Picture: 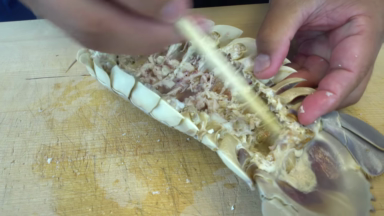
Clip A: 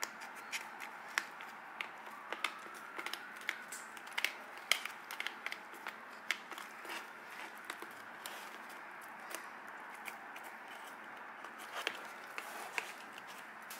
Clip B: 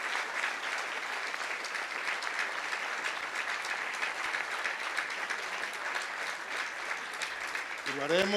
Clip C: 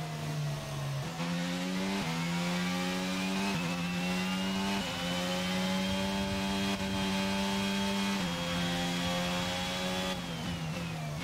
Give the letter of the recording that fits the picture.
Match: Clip A